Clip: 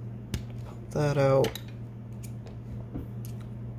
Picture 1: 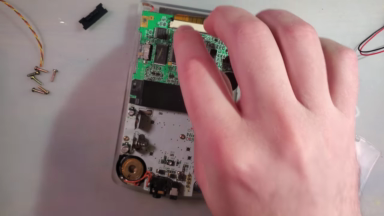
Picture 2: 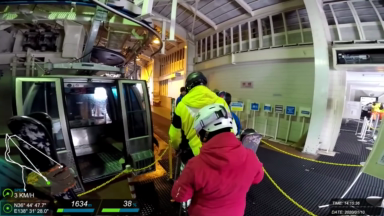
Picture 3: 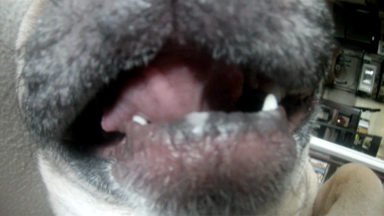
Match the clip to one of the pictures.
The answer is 1